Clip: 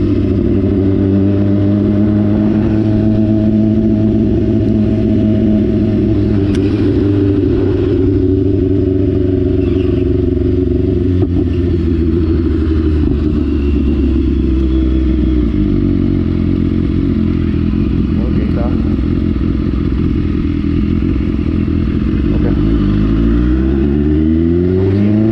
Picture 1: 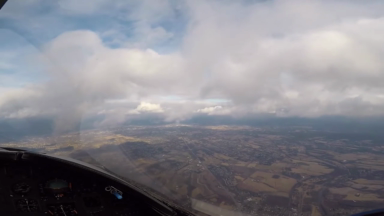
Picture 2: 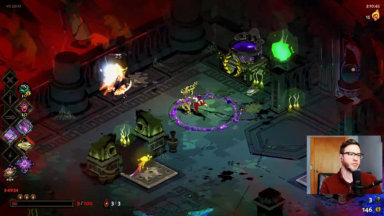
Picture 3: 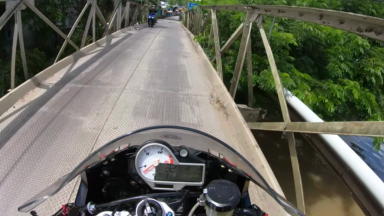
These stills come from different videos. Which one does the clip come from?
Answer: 3